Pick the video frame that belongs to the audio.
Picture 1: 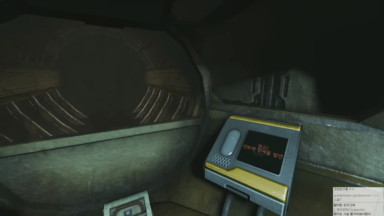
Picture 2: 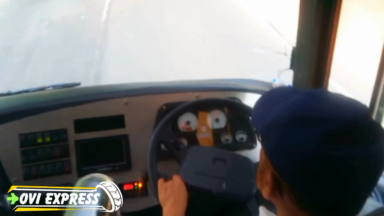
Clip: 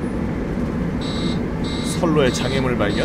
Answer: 1